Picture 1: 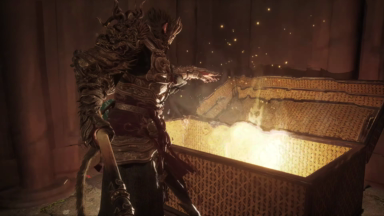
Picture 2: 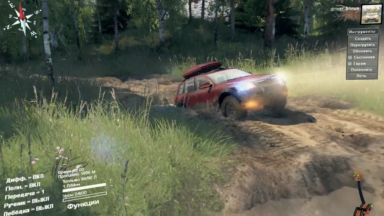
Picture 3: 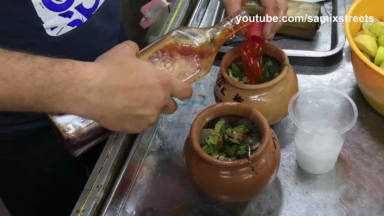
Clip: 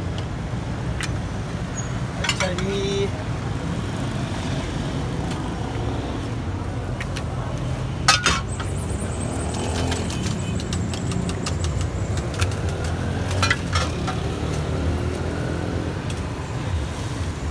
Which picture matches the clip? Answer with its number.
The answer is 3